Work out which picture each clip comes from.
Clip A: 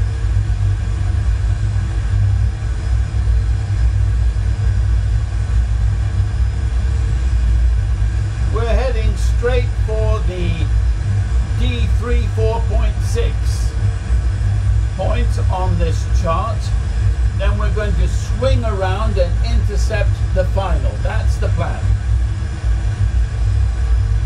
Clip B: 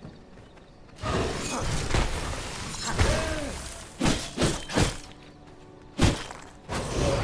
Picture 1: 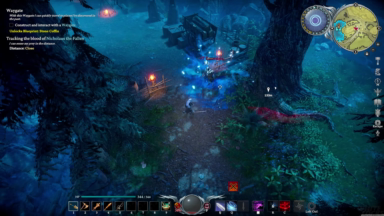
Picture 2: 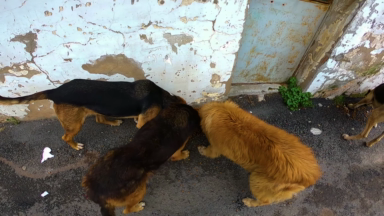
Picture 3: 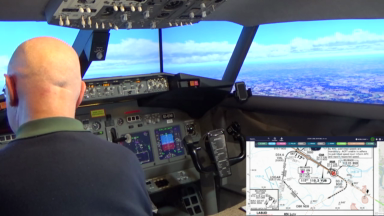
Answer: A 3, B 1